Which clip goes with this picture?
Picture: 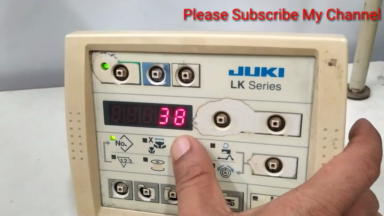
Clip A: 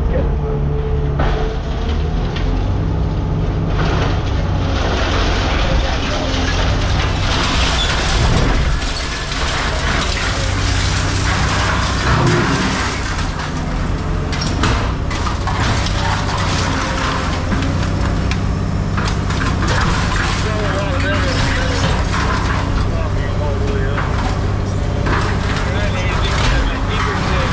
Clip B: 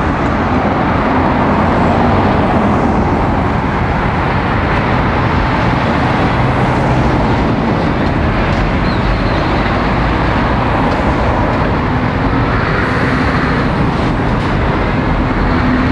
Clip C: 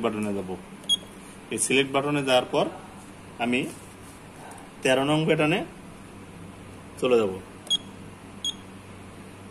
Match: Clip C